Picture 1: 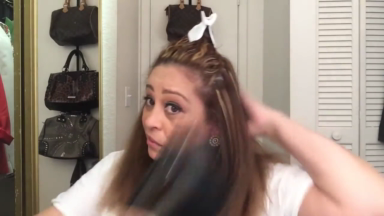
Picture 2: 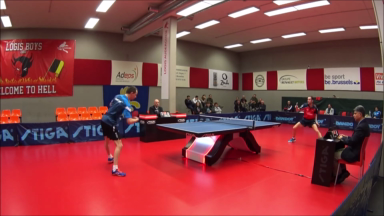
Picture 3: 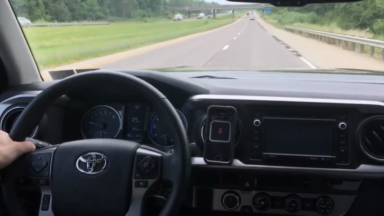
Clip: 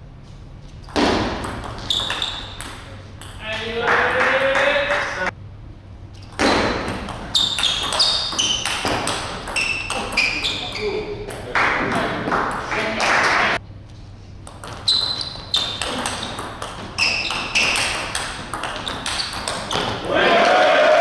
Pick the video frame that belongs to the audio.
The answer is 2